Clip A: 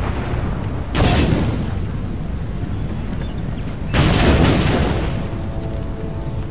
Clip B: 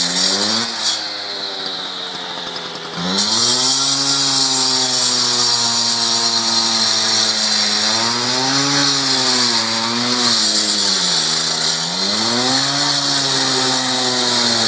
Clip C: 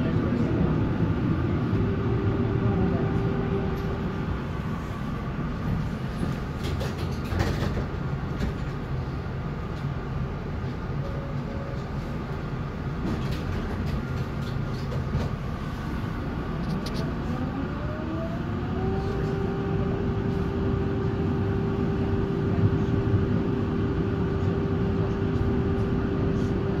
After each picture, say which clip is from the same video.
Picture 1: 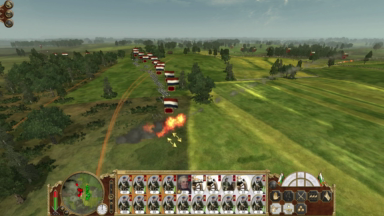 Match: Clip A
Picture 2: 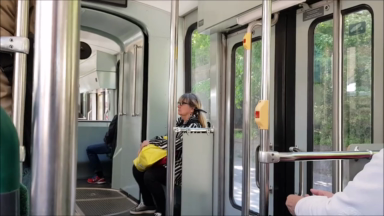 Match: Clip C